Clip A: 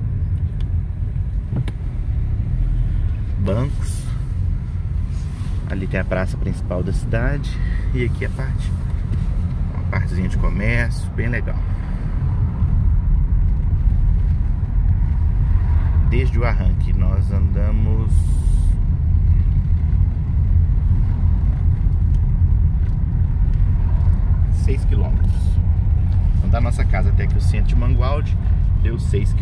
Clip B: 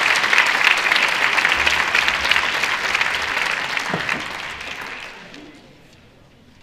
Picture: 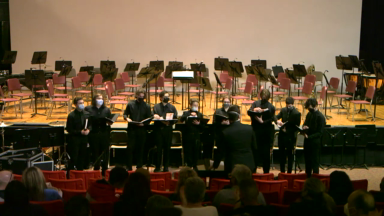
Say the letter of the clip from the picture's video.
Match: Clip B